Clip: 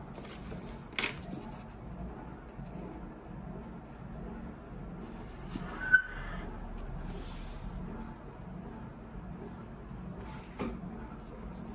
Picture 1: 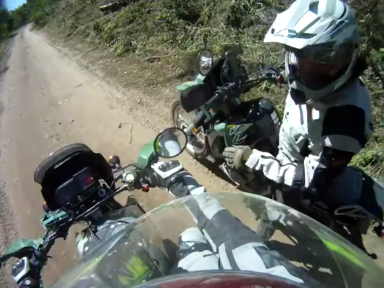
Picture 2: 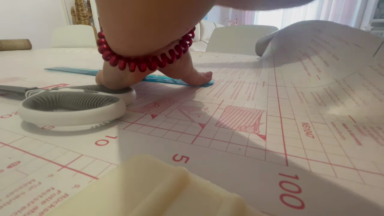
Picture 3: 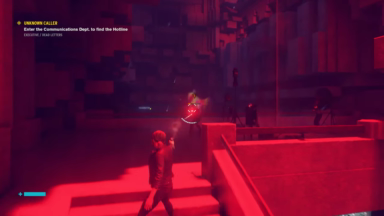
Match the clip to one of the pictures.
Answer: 2